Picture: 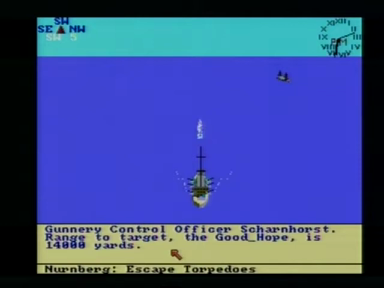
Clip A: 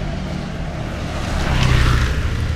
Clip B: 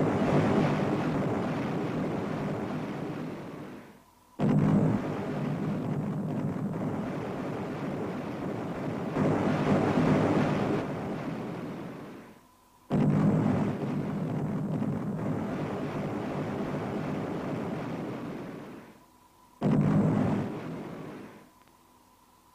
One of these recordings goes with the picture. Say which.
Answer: B